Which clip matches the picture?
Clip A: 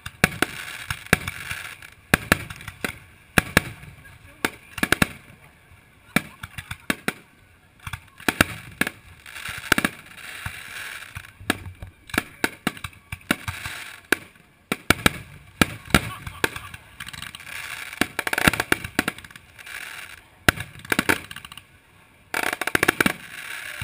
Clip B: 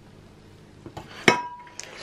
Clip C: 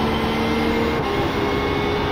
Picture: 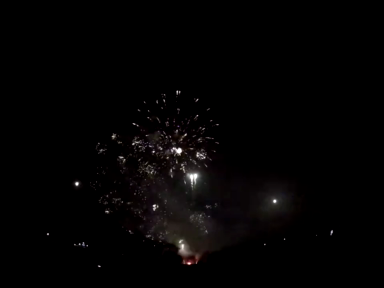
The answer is A